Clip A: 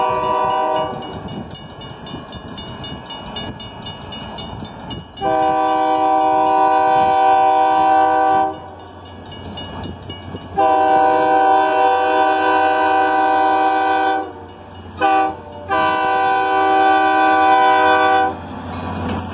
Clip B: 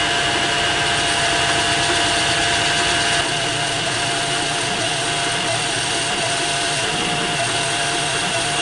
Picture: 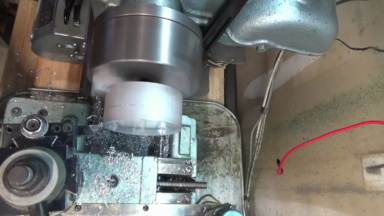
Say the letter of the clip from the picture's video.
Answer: B